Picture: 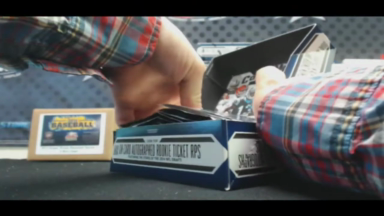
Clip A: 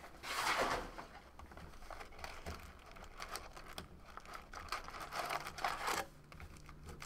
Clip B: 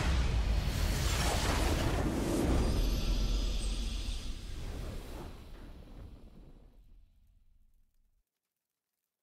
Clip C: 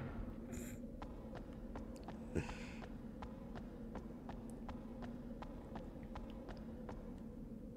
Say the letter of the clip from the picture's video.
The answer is A